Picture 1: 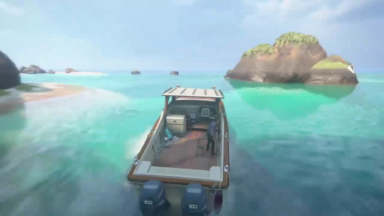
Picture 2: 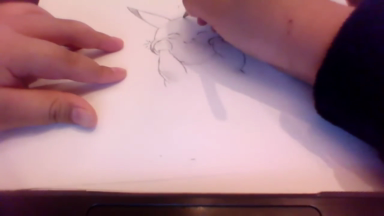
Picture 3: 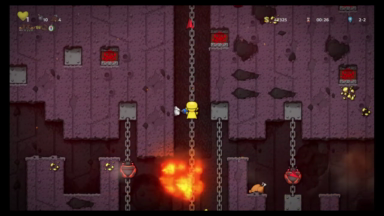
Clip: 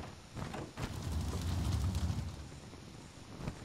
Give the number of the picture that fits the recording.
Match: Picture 3